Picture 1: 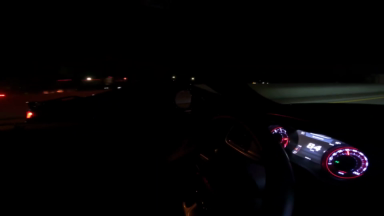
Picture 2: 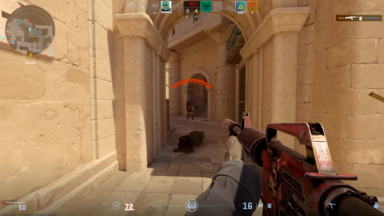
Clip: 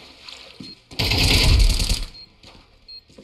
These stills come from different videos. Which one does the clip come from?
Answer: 2